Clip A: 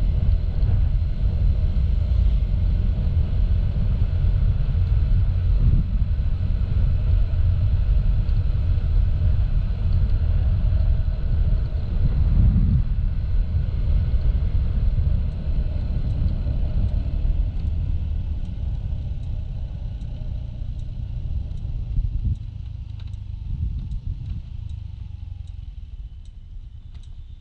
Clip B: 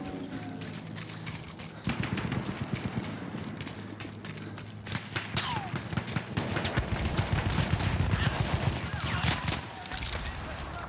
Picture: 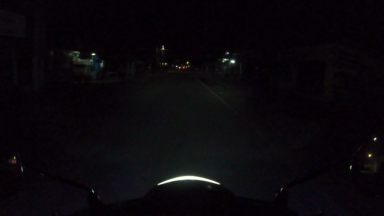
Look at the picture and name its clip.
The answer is A